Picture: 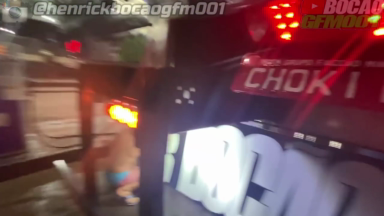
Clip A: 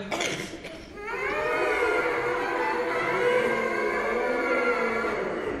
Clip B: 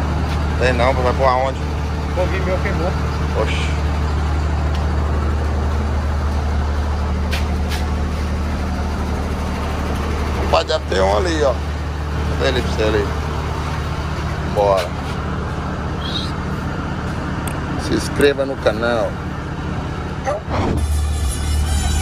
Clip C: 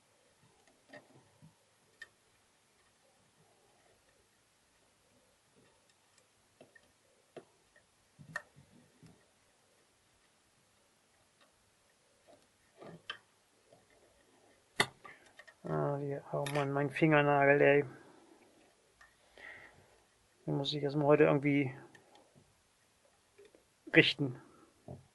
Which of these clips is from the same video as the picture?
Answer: B